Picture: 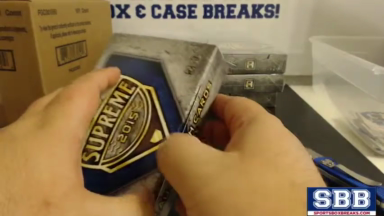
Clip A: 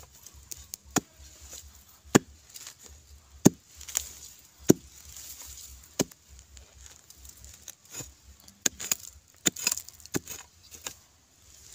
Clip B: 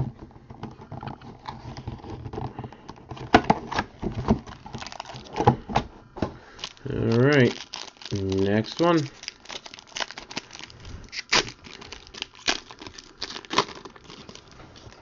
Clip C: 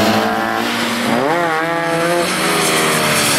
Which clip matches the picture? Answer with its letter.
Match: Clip B